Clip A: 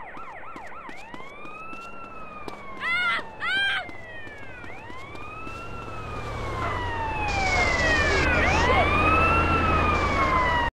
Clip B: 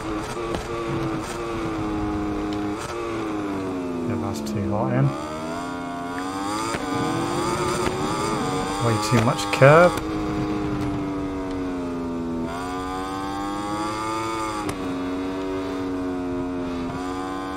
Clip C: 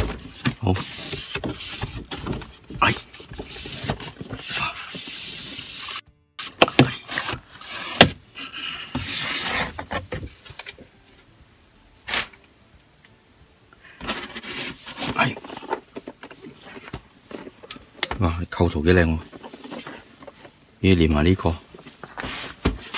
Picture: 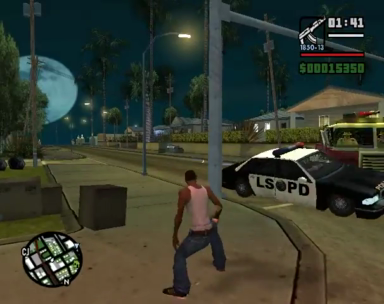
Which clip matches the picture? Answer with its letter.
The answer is A